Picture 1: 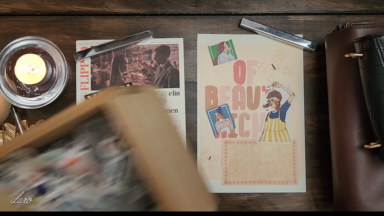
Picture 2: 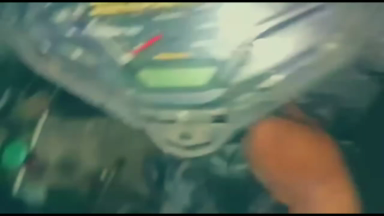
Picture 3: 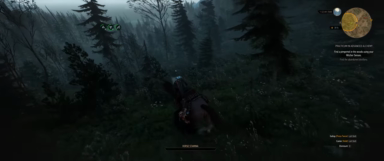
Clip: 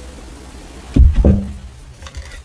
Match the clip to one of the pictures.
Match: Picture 1